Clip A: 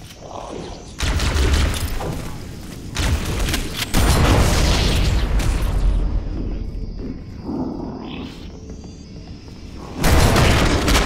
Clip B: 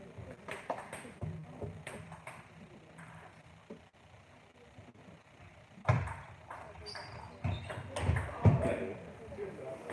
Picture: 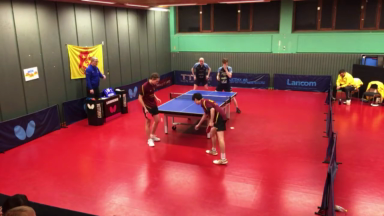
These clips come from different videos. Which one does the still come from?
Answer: B